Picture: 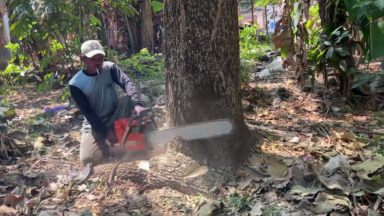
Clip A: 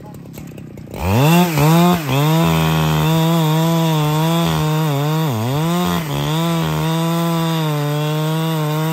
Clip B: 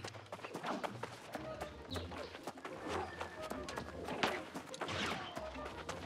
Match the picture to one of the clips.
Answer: A